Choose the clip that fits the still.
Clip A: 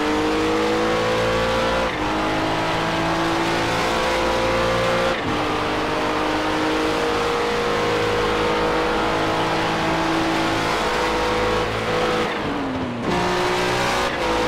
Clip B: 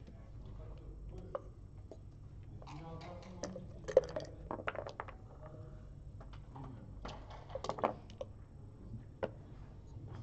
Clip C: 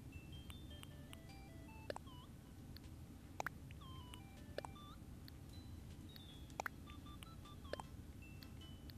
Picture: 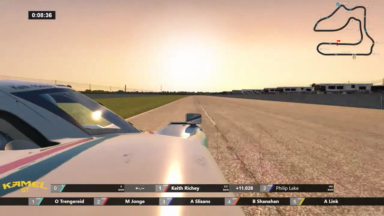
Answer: A